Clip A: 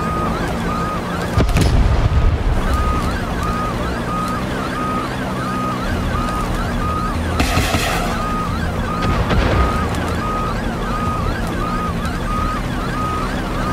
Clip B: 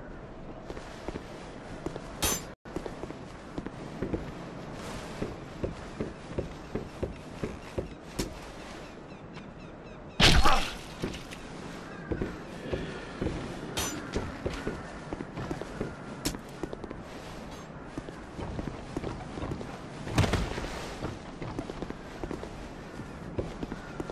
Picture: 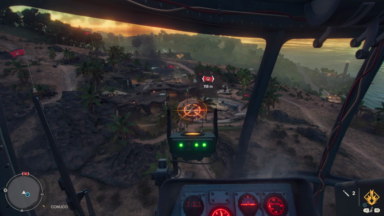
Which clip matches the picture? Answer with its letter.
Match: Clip A